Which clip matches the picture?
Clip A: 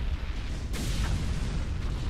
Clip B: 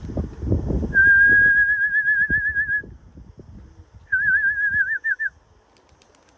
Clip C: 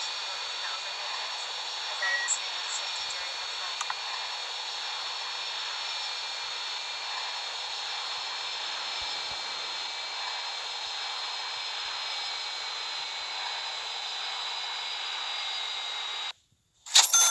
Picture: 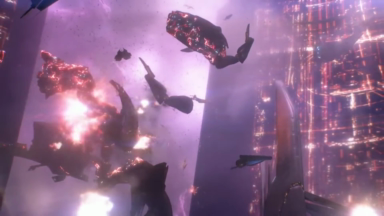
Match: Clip A